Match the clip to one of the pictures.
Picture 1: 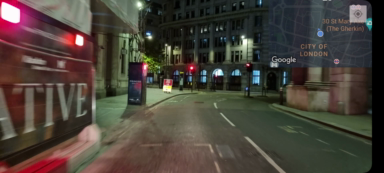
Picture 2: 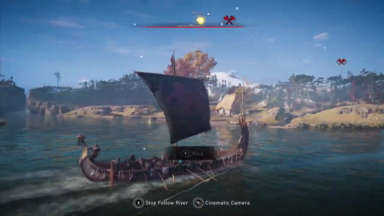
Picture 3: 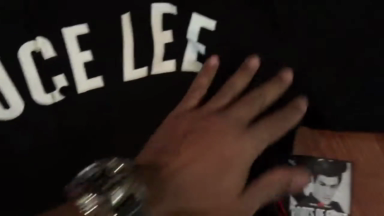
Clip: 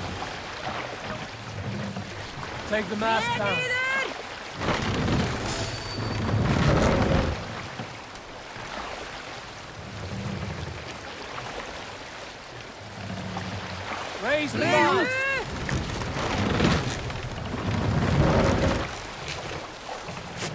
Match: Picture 2